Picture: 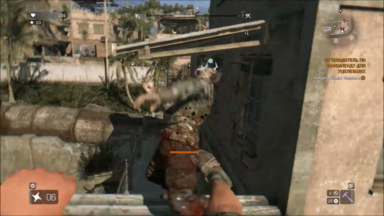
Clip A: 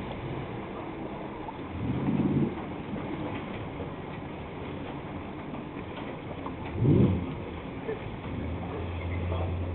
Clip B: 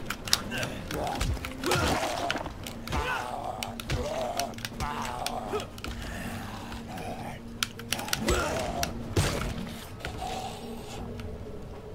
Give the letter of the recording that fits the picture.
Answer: B